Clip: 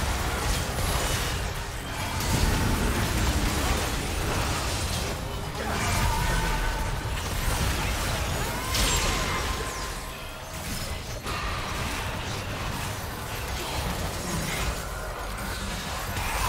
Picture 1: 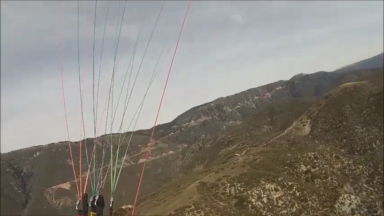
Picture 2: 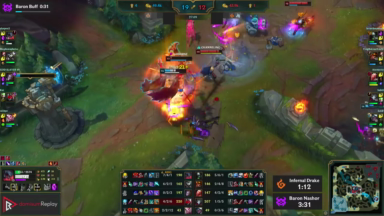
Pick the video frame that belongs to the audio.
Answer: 2